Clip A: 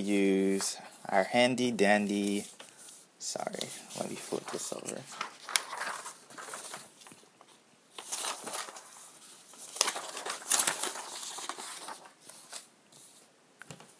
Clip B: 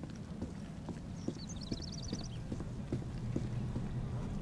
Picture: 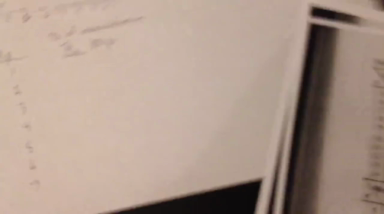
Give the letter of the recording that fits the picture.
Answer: A